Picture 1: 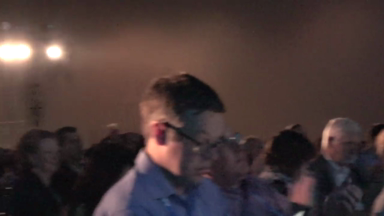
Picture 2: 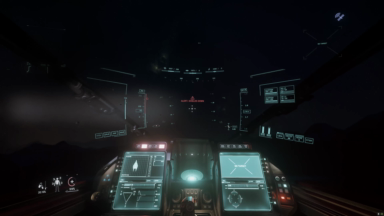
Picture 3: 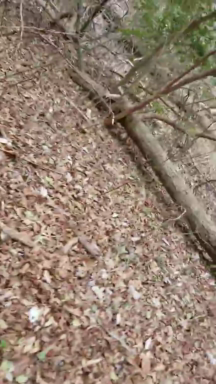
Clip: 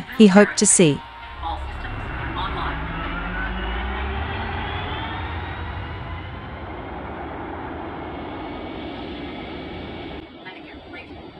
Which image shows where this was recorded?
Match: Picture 2